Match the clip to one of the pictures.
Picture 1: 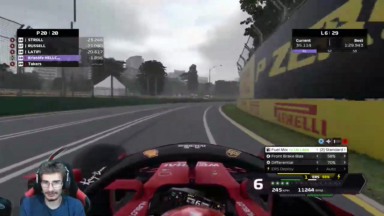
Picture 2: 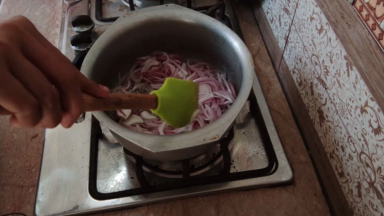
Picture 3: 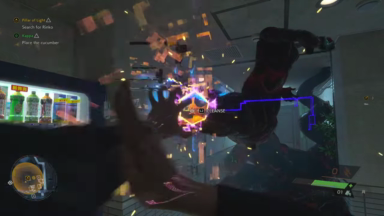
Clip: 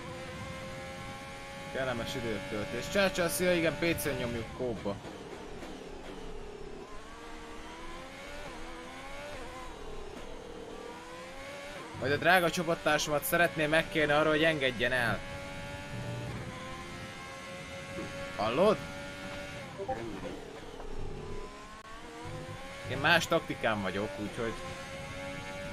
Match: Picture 1